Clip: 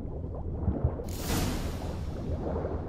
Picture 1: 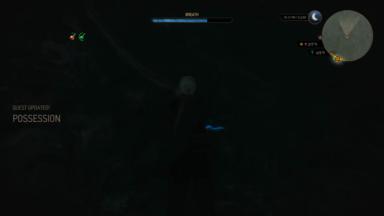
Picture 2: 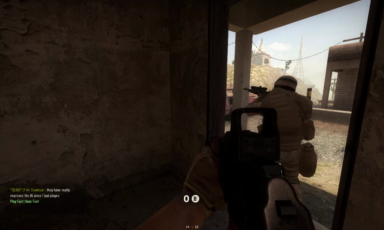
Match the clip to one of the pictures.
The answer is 1